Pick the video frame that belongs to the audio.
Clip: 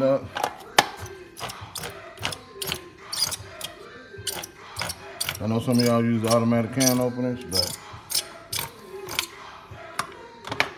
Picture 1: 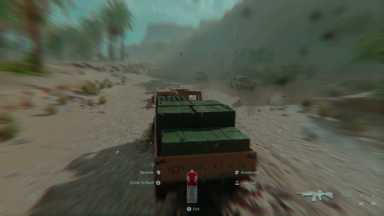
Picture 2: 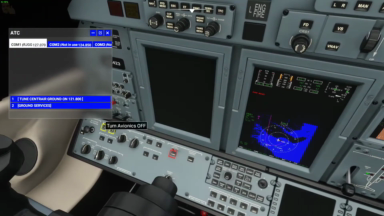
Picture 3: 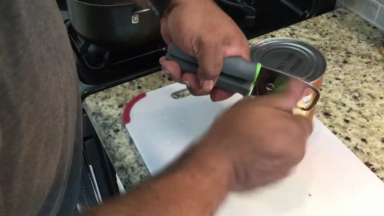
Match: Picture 3